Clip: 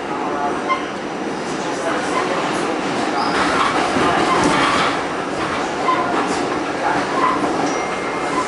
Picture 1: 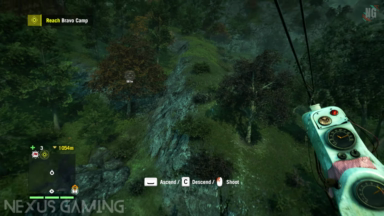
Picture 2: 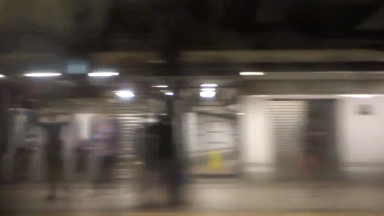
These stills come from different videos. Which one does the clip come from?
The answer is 2